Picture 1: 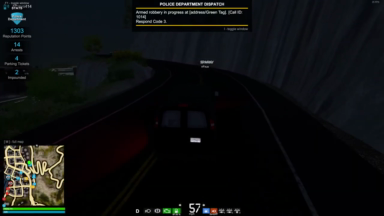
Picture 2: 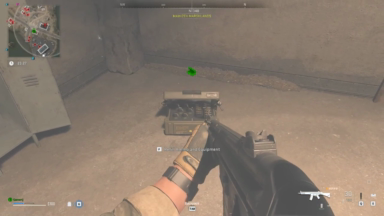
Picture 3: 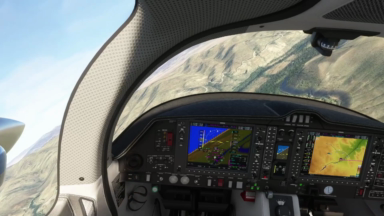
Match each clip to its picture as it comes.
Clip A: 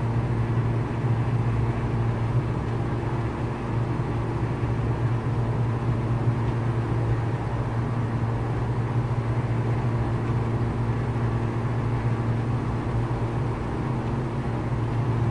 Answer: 3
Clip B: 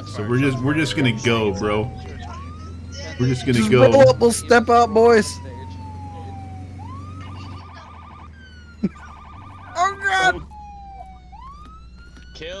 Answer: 1